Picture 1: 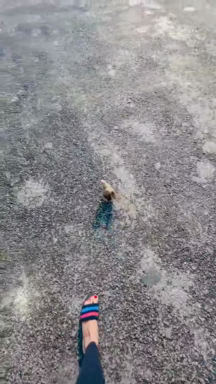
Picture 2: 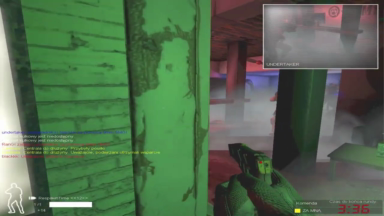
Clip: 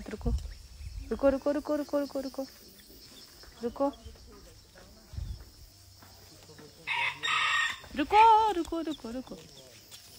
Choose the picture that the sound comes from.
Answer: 1